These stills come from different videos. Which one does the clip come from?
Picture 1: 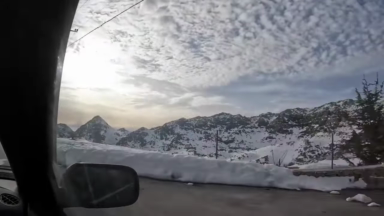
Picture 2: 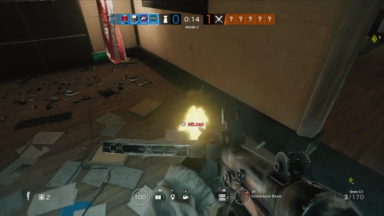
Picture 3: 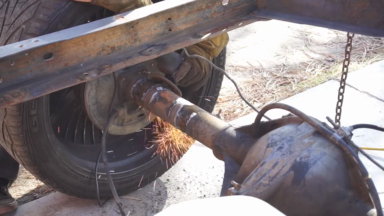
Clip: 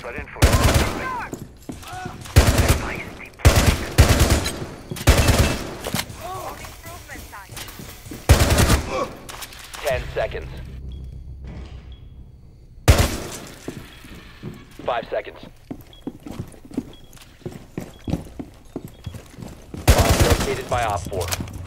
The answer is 2